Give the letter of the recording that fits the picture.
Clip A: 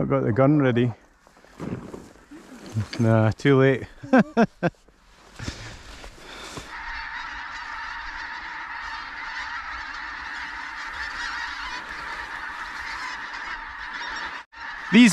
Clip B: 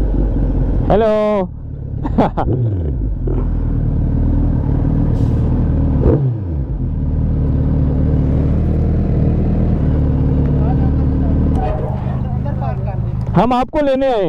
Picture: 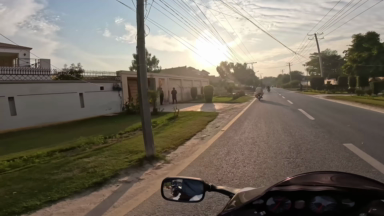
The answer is B